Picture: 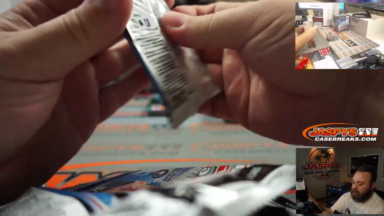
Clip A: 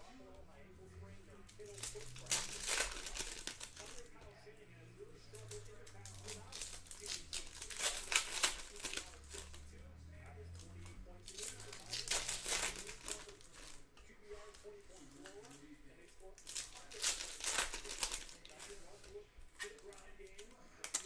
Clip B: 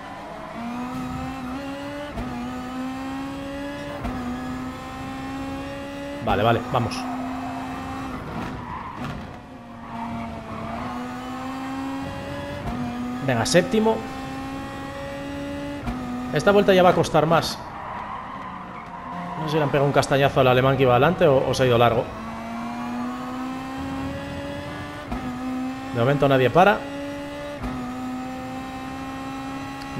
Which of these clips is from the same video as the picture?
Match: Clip A